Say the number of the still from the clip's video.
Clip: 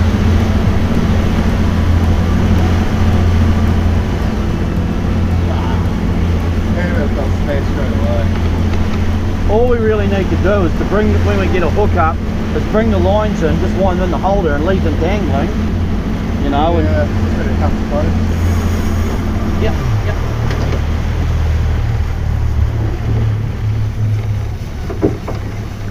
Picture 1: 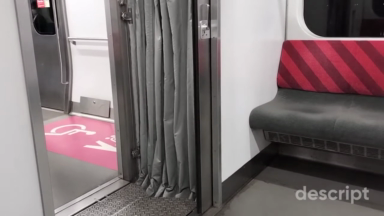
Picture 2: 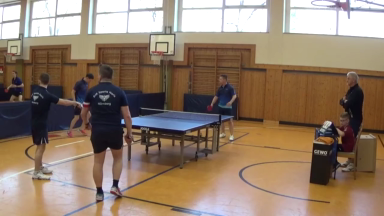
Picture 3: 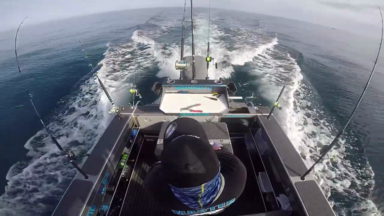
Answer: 3